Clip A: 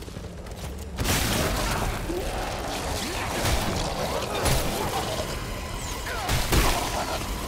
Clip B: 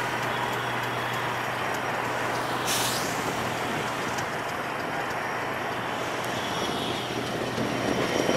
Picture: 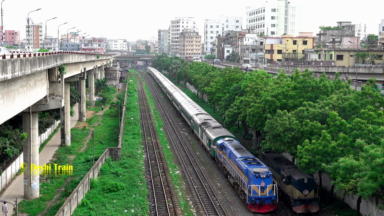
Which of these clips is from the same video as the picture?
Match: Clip B